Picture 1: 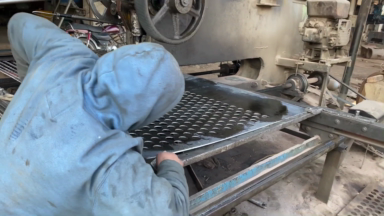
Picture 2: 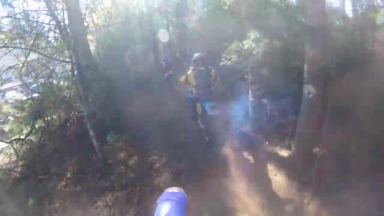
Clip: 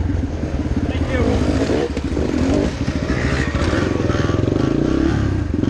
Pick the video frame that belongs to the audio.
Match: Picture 2